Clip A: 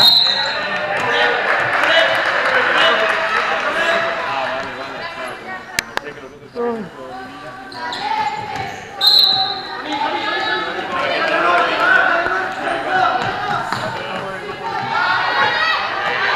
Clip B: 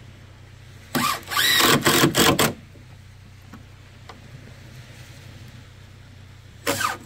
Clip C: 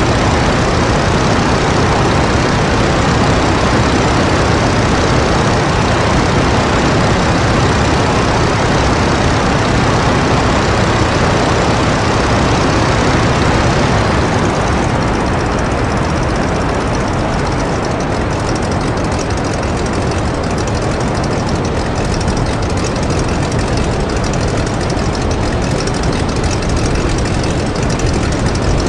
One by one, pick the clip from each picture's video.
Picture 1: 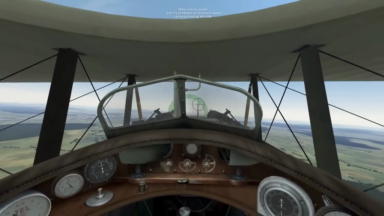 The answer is C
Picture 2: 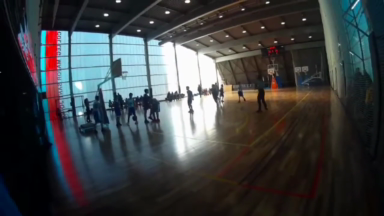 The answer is A